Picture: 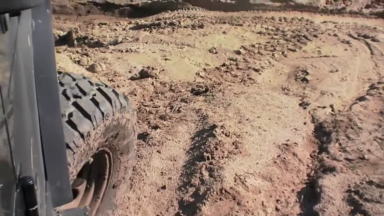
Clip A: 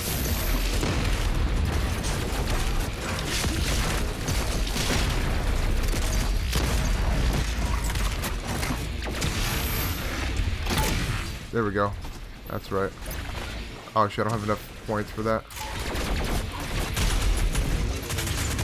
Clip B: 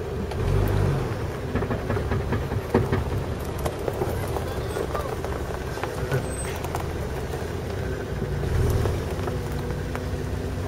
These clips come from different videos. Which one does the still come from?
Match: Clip B